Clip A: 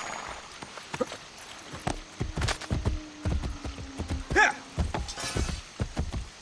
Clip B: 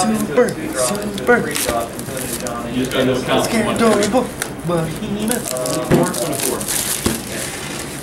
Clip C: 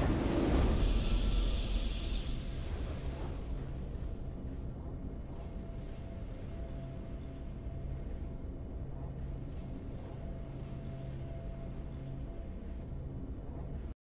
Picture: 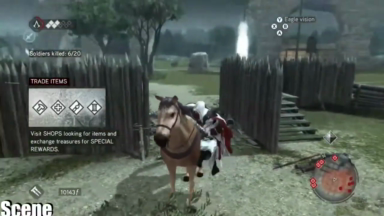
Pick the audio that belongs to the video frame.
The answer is A